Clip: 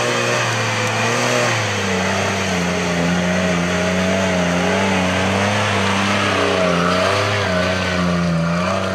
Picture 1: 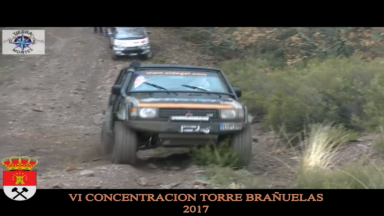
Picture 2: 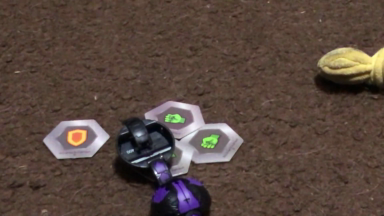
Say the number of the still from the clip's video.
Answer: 1